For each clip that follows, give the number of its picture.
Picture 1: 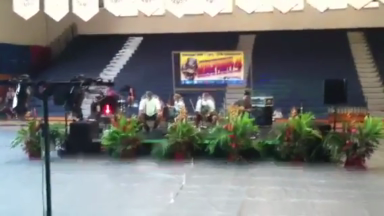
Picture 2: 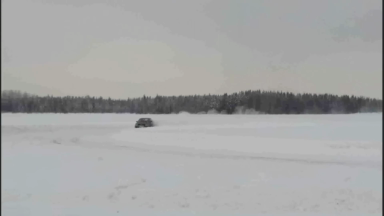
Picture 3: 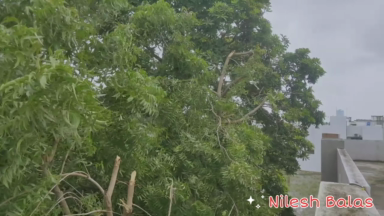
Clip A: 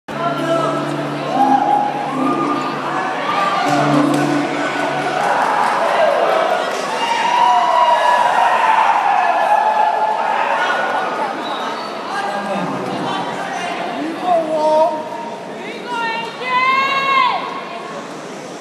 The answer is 1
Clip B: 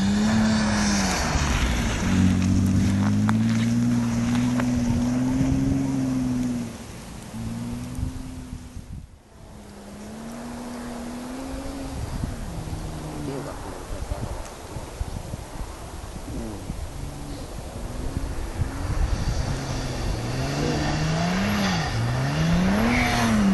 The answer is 2